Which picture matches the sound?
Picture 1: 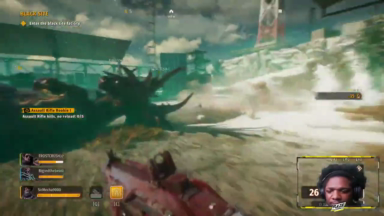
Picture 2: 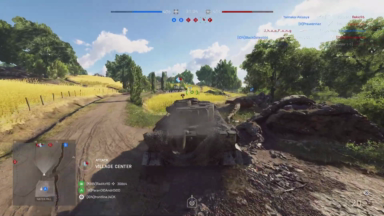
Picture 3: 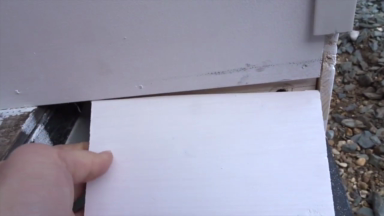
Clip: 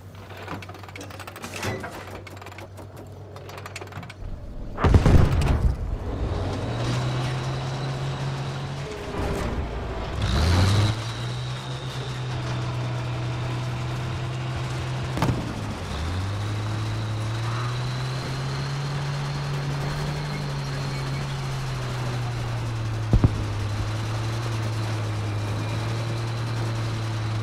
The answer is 2